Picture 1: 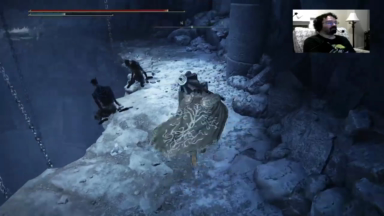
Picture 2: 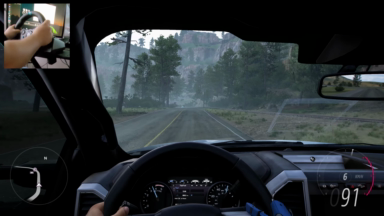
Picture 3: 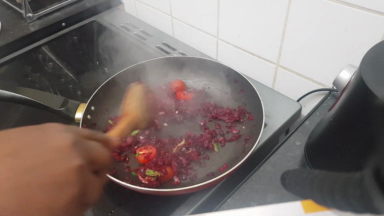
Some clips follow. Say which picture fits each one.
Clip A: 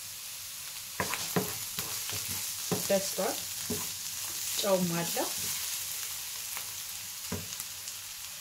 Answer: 3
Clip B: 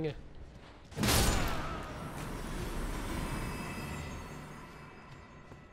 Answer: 1